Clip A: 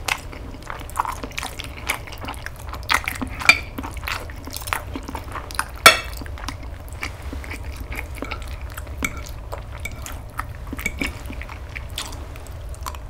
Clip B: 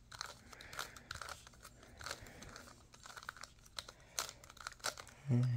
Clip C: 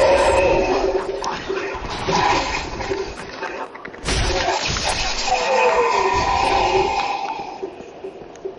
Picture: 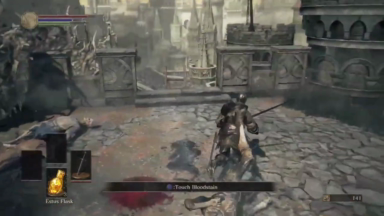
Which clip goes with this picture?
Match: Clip C